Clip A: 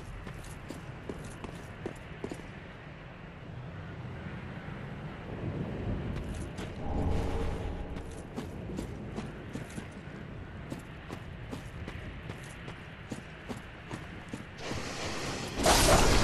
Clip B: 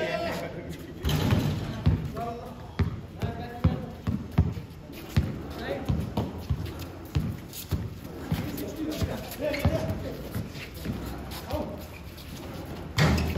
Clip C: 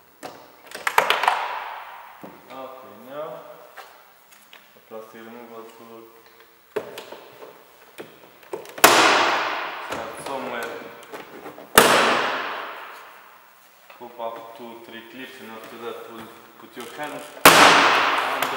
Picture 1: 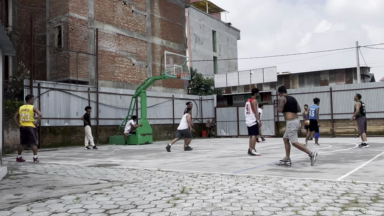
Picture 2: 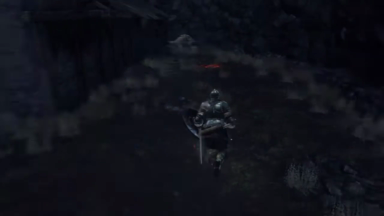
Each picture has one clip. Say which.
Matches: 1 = B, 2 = A